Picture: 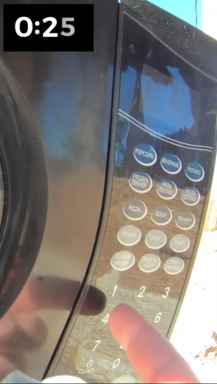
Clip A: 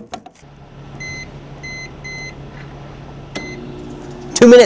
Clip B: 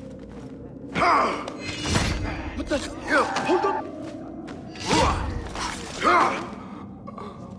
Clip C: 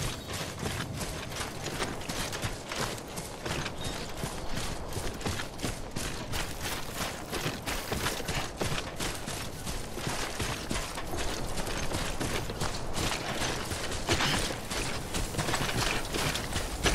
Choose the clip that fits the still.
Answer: A